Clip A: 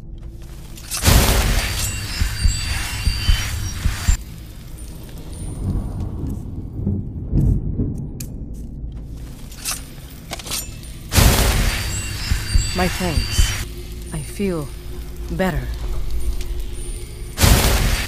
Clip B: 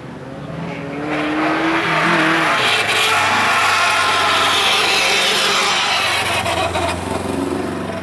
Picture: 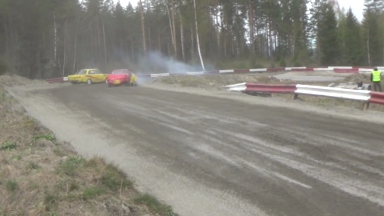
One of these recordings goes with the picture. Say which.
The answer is B